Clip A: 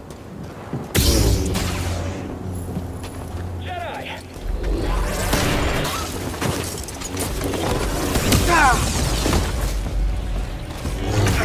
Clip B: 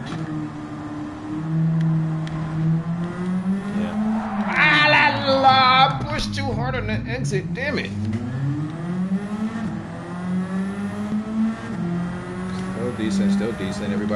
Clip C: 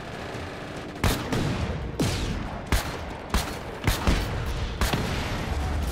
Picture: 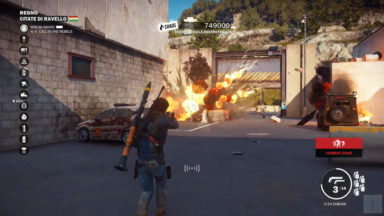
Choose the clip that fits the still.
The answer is C